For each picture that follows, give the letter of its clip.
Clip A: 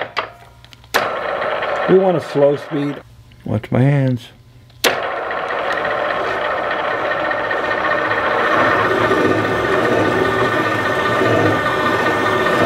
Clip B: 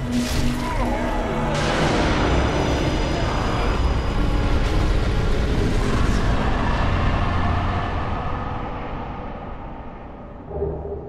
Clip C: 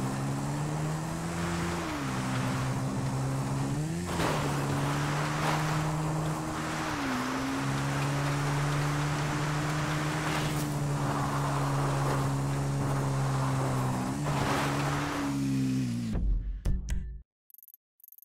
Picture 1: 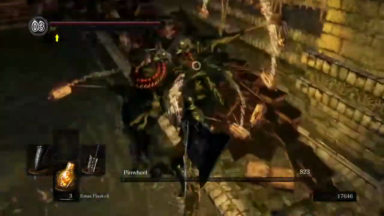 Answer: B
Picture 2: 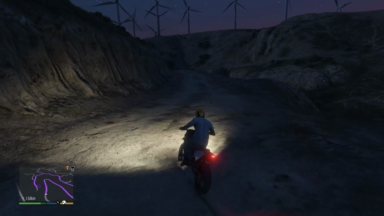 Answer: C